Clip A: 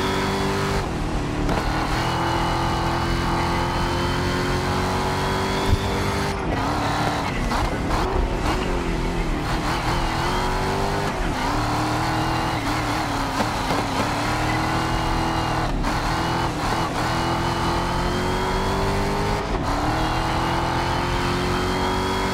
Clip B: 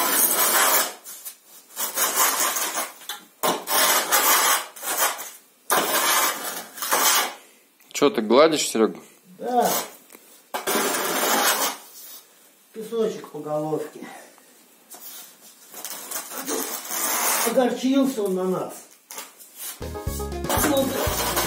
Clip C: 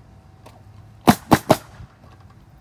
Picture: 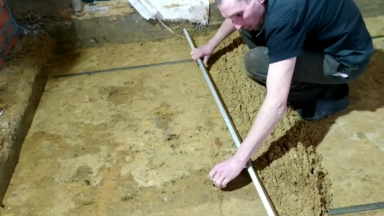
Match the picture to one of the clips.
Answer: B